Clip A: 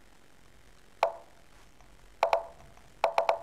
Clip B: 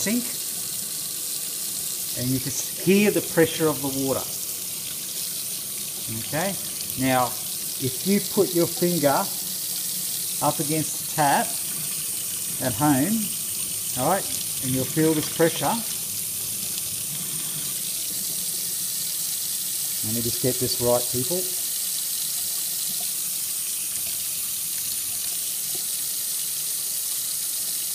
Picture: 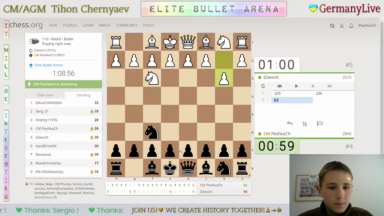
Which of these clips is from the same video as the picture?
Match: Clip A